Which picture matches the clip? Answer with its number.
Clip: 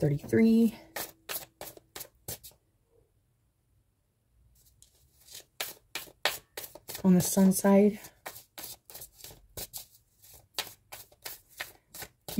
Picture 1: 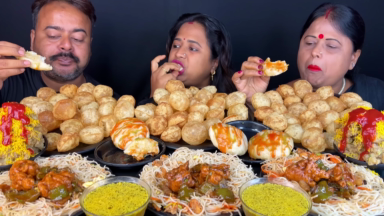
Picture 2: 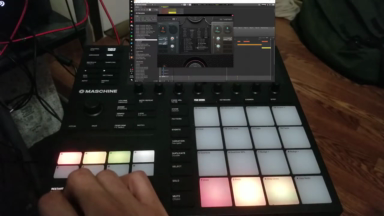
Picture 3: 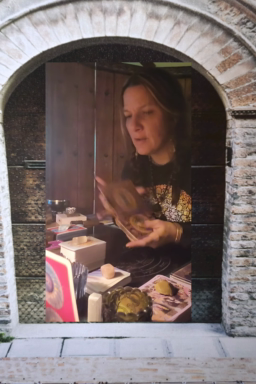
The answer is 3